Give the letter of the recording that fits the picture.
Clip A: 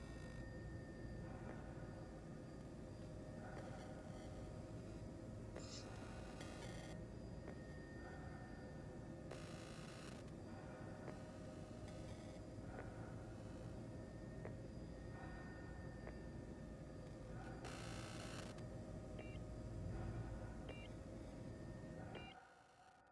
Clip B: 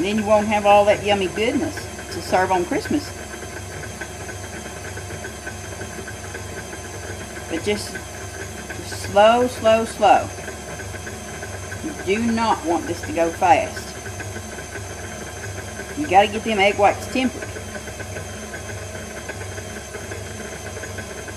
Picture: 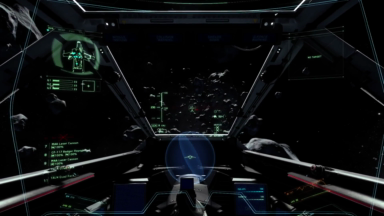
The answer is A